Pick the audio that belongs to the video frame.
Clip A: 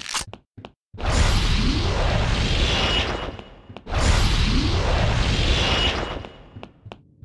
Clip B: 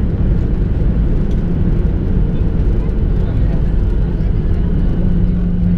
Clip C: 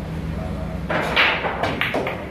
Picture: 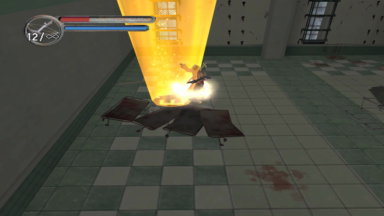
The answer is A